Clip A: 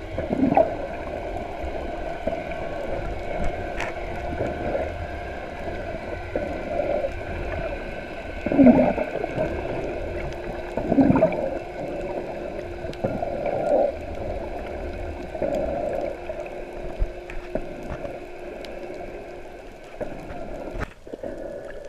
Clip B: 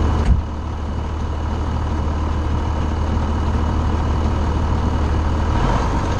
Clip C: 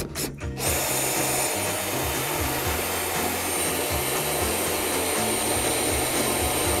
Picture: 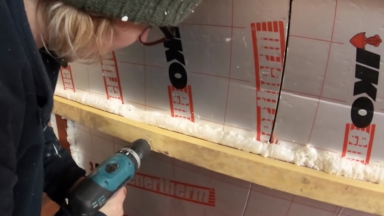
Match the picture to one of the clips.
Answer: C